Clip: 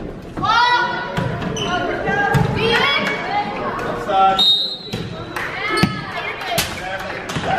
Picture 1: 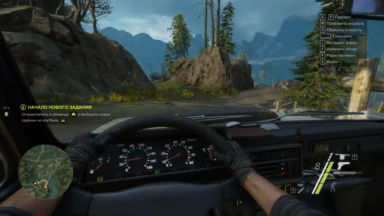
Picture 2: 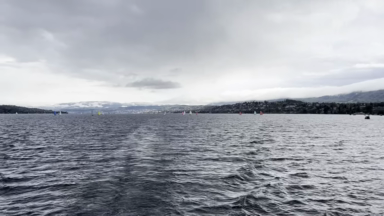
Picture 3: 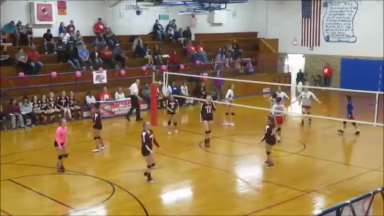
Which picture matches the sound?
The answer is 3